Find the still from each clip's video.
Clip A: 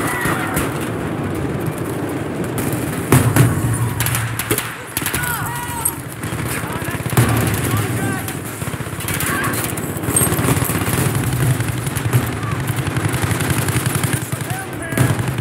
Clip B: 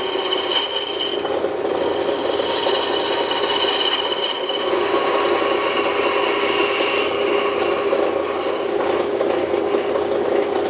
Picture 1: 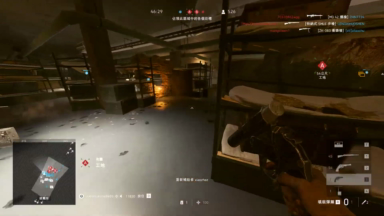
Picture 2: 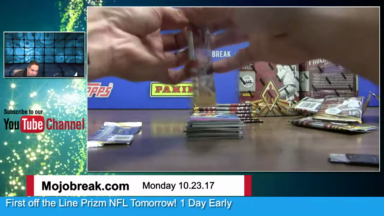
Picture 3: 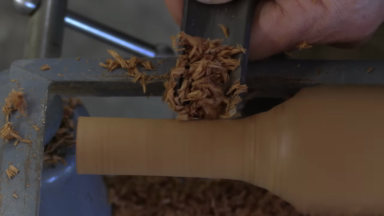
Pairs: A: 1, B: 3